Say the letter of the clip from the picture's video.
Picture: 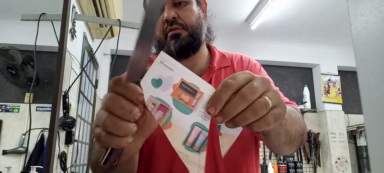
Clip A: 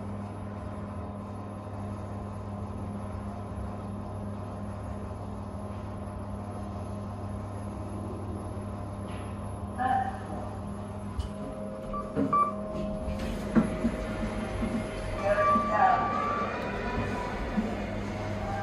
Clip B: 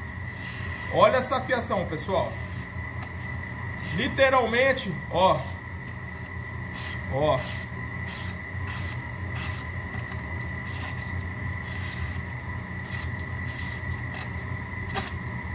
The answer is B